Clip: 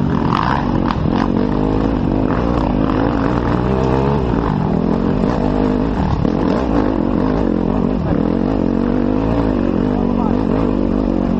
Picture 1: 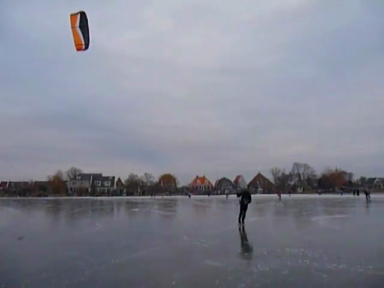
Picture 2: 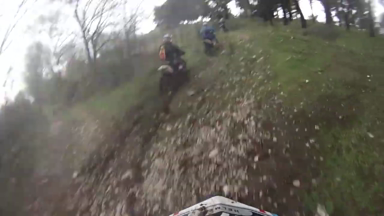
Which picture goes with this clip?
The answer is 2